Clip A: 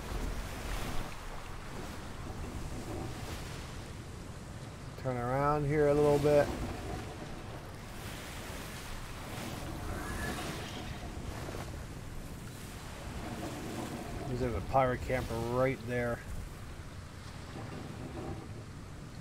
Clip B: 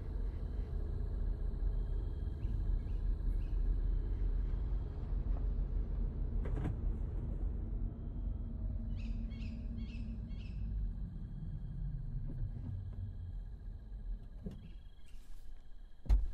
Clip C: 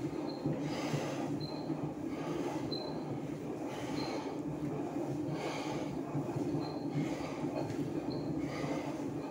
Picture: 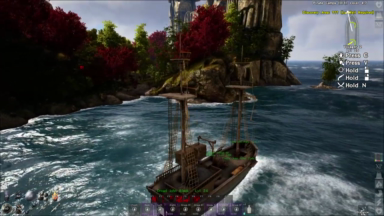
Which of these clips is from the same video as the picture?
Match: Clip A